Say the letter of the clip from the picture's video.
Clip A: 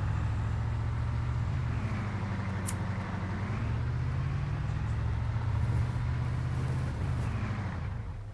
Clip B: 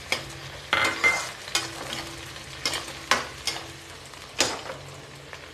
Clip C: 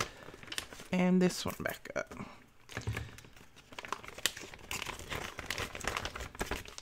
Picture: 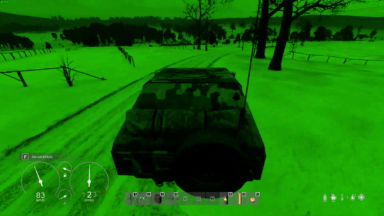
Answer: A